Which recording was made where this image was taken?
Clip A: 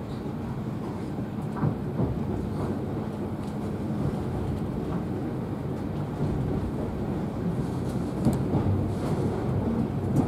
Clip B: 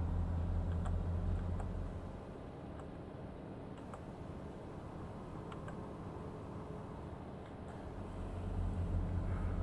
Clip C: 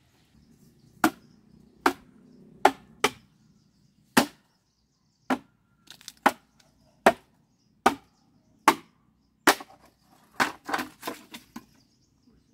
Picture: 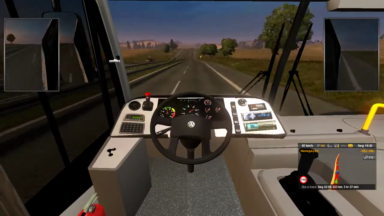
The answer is B